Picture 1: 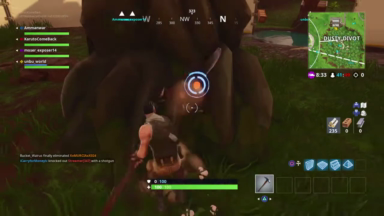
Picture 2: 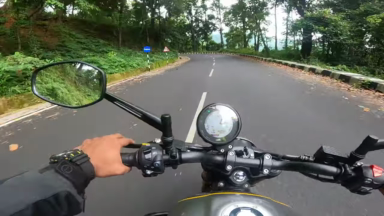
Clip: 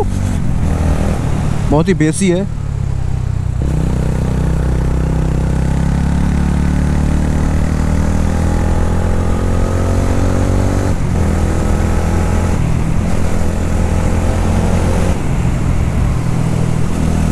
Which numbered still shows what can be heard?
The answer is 2